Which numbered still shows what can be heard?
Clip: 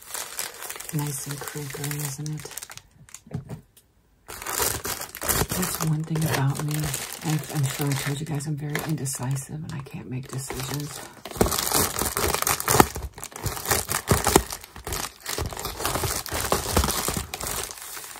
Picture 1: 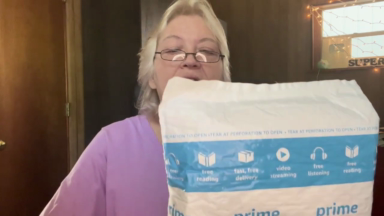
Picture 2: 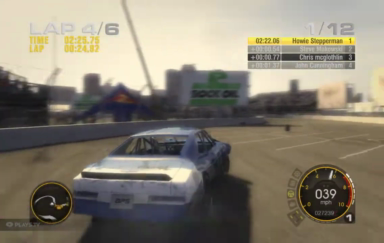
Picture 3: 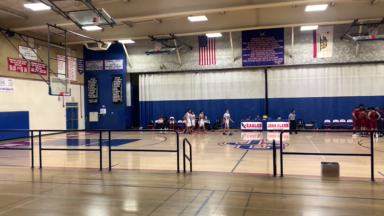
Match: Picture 1